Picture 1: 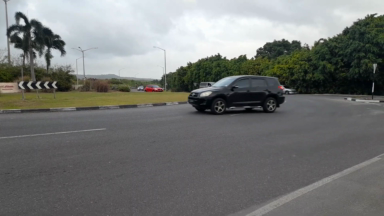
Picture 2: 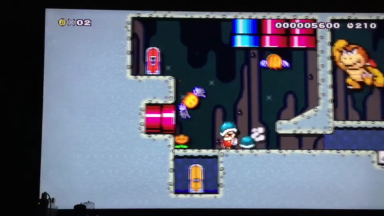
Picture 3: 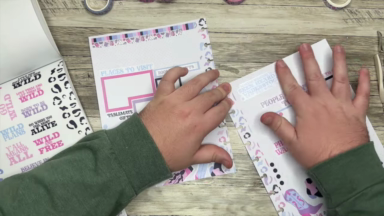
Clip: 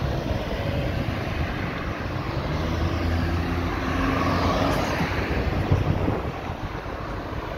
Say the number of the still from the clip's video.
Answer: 1